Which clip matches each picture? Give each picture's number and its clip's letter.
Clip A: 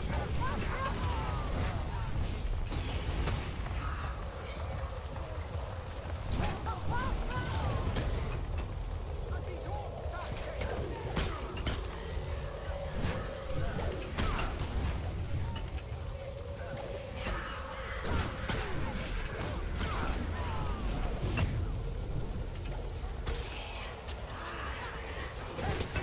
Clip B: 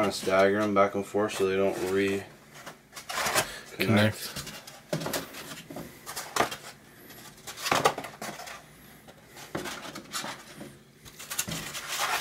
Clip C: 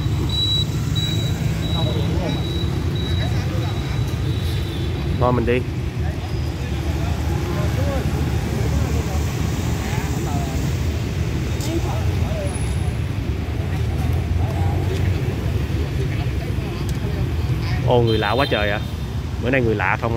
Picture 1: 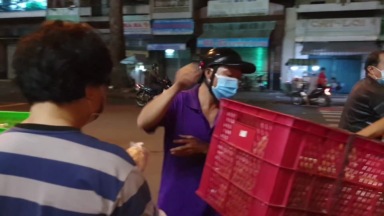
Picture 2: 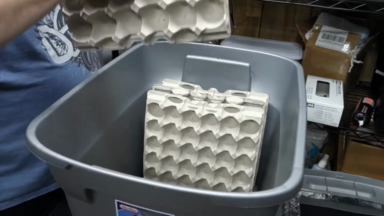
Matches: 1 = C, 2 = B